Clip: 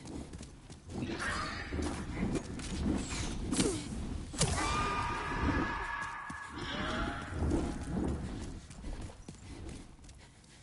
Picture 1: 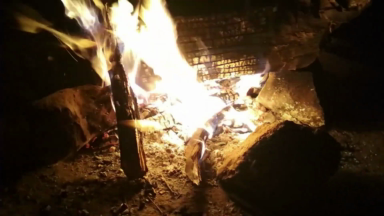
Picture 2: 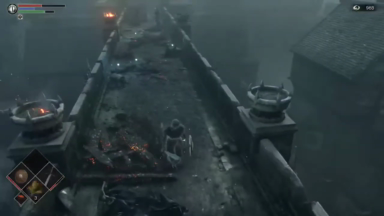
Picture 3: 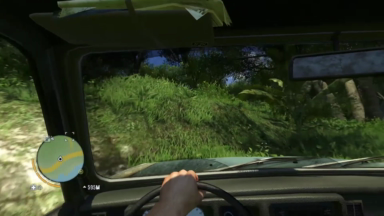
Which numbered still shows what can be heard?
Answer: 2